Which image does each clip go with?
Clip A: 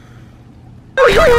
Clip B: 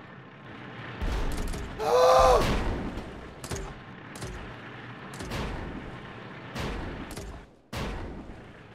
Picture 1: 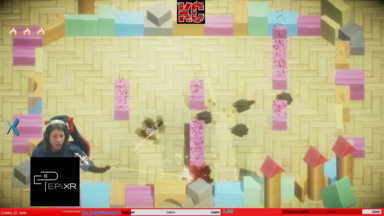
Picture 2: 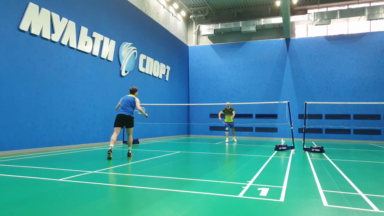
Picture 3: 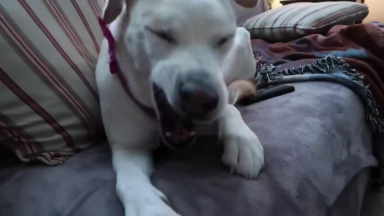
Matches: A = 3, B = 1